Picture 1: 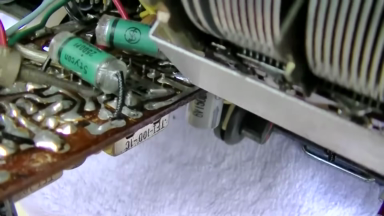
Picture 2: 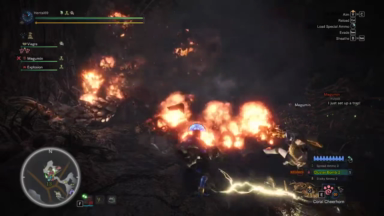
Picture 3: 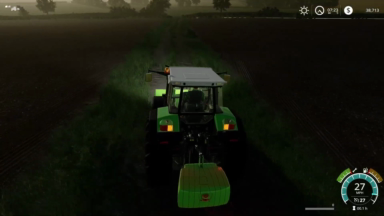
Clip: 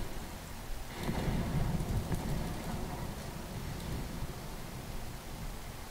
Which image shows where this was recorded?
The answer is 2